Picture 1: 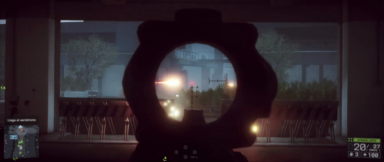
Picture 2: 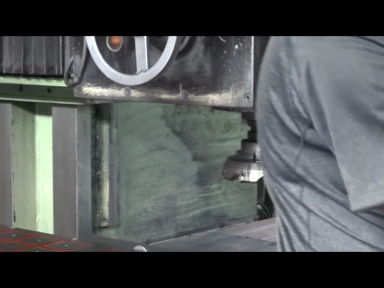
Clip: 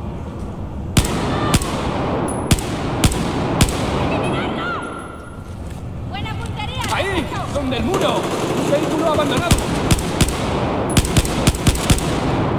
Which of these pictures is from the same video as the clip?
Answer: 1